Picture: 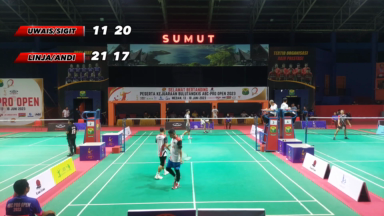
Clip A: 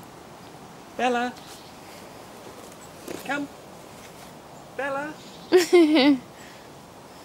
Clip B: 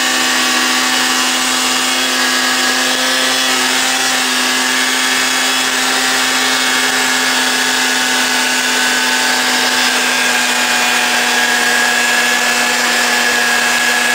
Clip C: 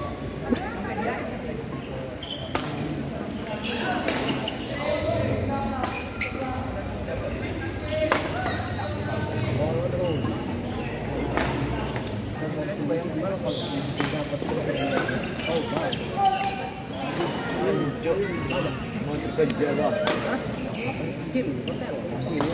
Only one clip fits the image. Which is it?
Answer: C